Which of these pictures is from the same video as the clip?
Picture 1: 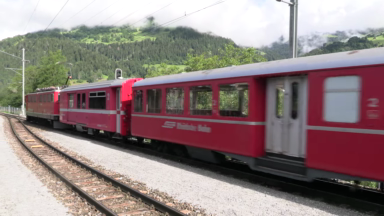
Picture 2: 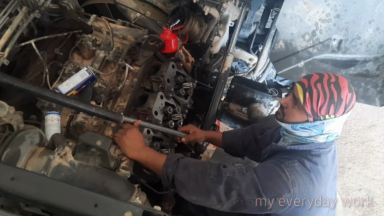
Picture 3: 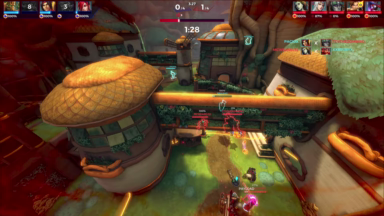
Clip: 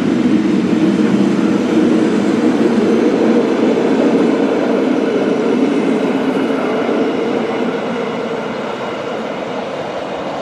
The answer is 1